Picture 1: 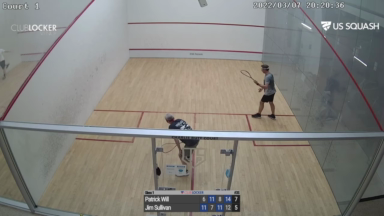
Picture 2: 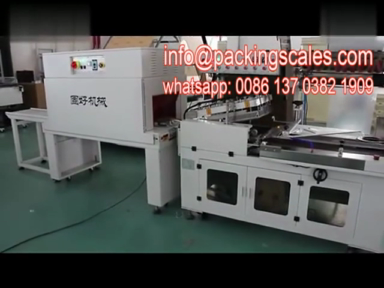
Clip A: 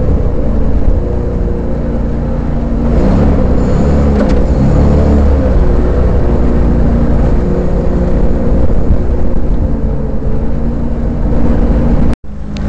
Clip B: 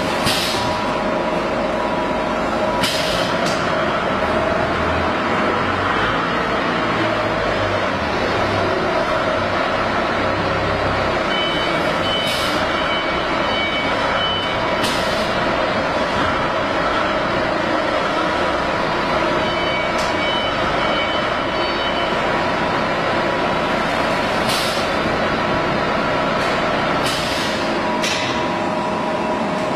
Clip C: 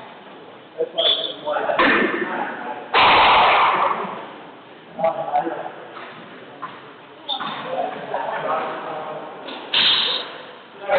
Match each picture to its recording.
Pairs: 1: C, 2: B